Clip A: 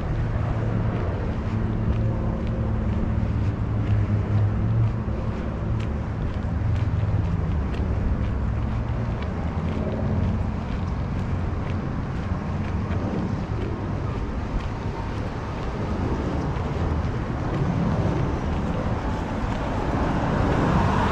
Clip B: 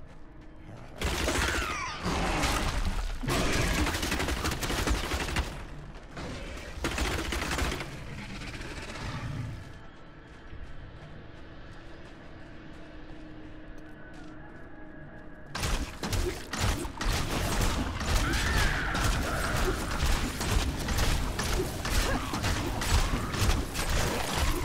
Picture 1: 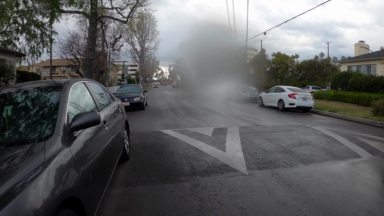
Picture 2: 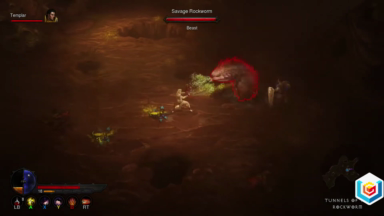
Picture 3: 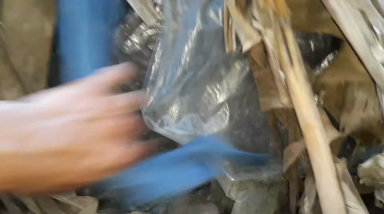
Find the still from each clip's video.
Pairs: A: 1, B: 2